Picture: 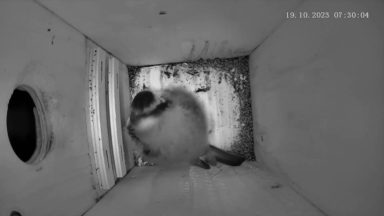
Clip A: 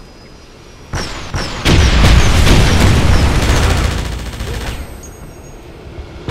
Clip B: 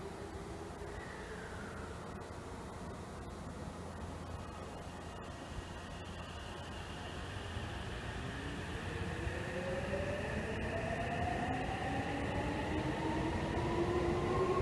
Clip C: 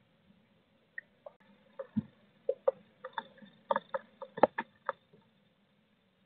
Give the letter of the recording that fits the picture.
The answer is C